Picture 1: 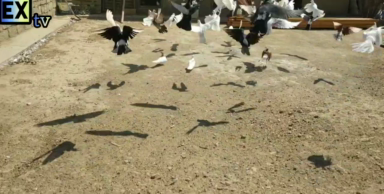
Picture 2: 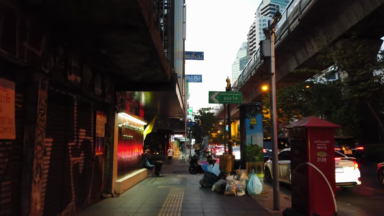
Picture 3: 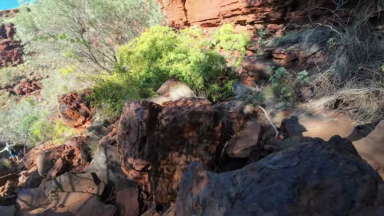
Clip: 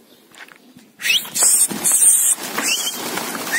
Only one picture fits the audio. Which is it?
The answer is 1